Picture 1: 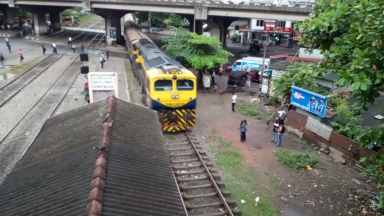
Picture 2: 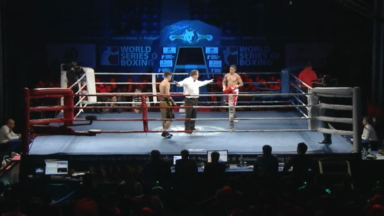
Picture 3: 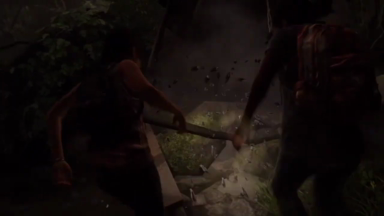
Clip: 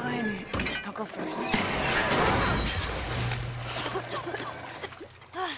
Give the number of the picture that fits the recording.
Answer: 3